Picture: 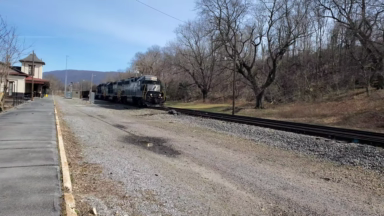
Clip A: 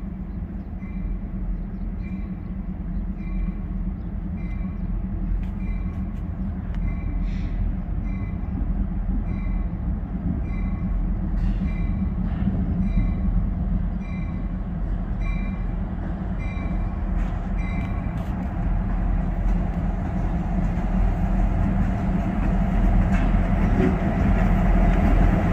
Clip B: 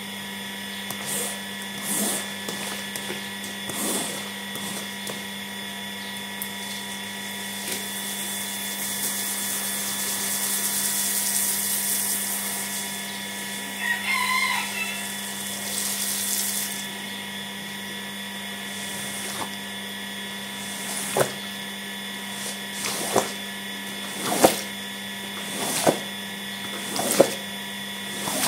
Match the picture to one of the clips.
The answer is A